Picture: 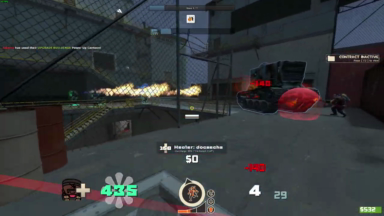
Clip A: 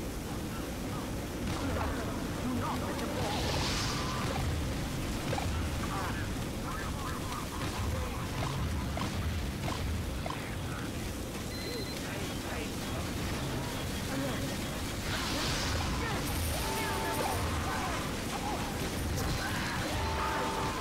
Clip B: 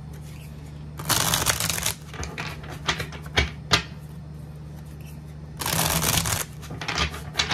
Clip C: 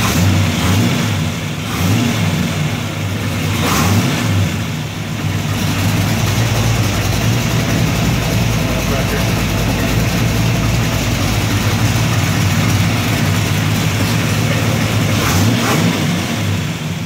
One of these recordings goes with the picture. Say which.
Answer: A